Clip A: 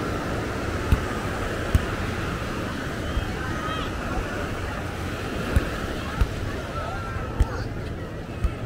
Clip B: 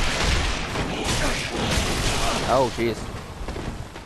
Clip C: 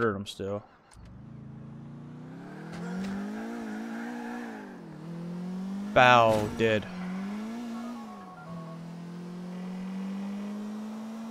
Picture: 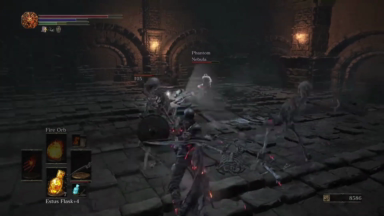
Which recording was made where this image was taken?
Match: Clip B